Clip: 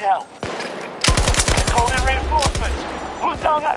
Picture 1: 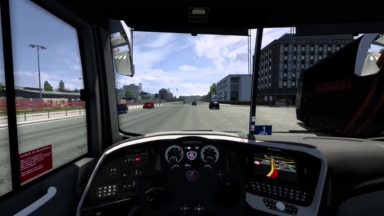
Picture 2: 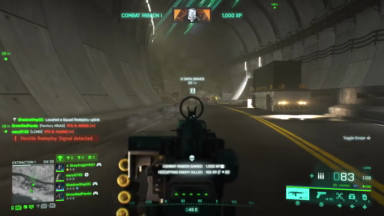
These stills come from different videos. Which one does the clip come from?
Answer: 2